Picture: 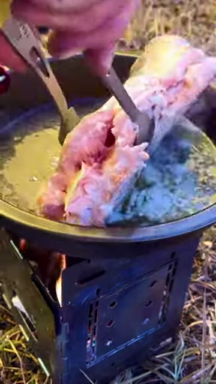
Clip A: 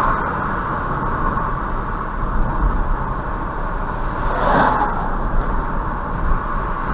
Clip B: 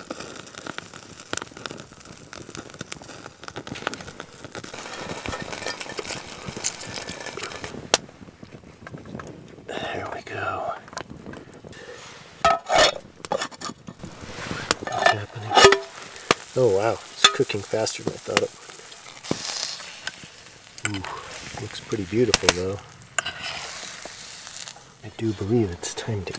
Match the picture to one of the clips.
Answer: B